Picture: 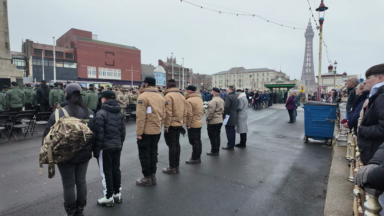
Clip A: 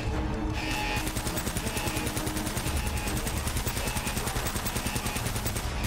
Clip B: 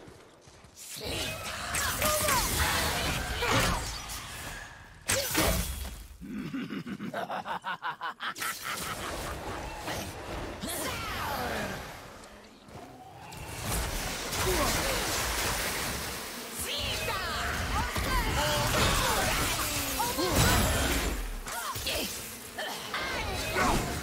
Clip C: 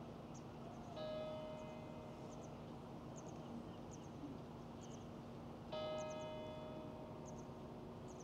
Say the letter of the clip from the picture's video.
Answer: C